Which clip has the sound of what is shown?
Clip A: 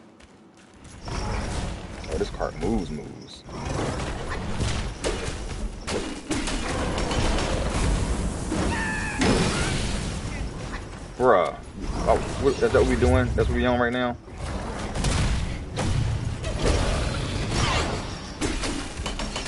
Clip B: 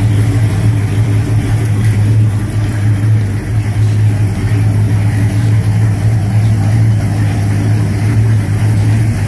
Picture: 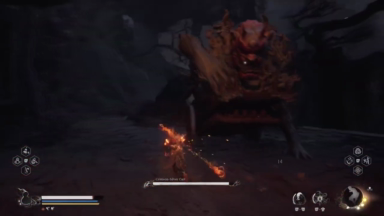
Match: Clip A